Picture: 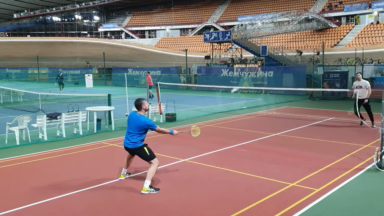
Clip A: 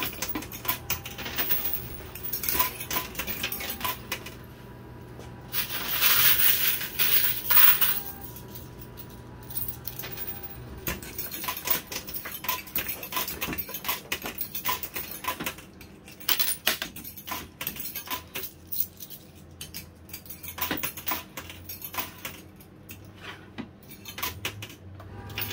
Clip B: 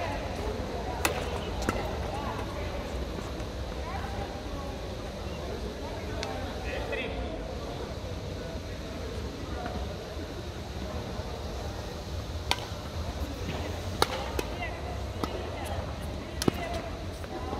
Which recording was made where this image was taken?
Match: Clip B